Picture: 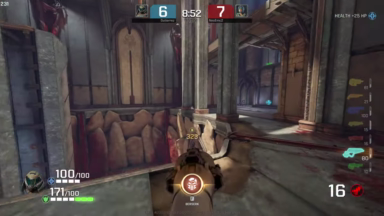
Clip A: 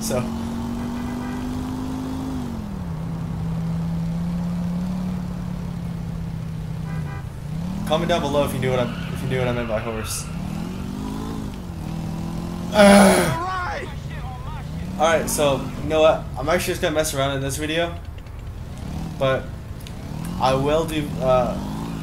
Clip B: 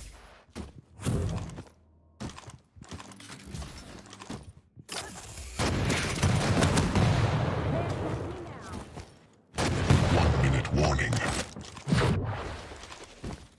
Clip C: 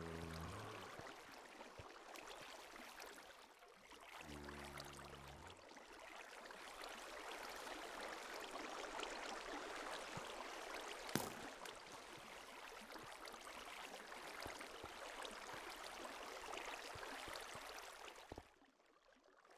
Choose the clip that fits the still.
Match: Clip B